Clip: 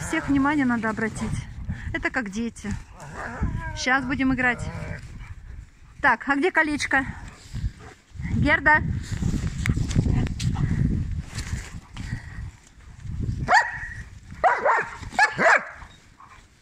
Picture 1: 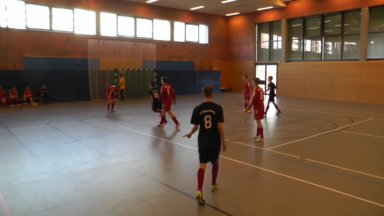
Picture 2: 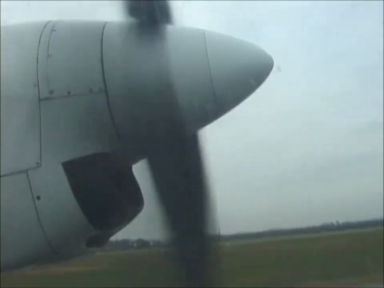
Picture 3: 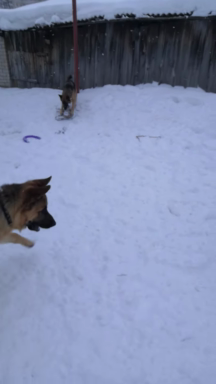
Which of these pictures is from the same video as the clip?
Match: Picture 3